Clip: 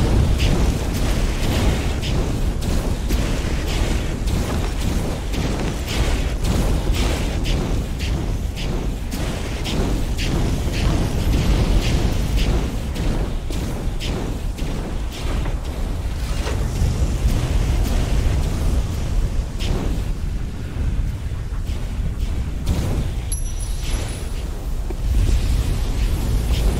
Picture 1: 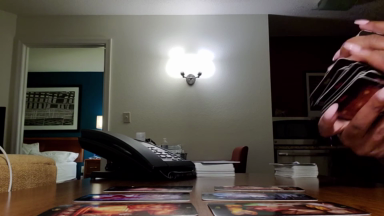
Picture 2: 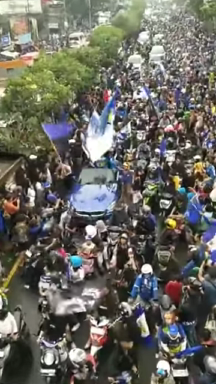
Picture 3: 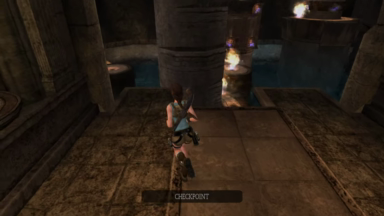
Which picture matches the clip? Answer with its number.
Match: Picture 3